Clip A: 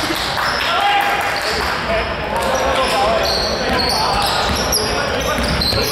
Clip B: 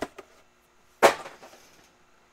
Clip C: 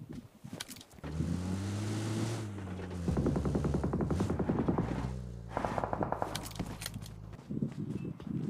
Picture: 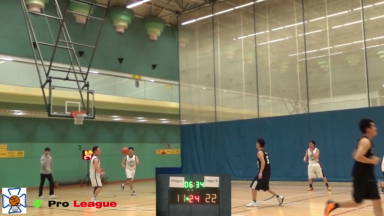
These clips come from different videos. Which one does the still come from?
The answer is A